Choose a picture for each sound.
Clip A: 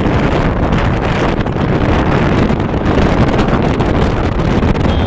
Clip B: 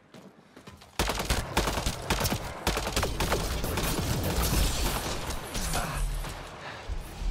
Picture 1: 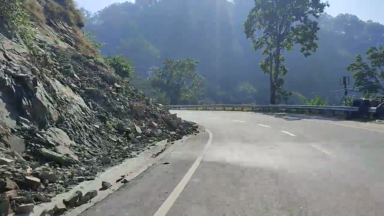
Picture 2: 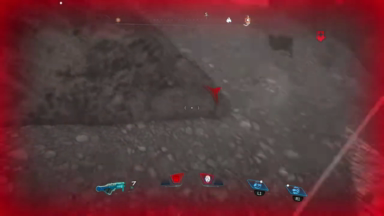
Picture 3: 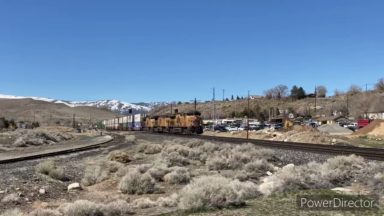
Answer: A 1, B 2